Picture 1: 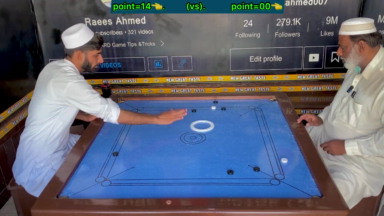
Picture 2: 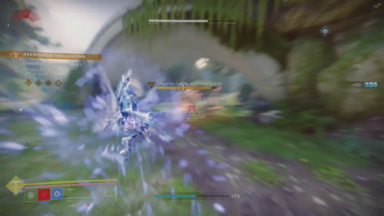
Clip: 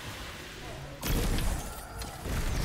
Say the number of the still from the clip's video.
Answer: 2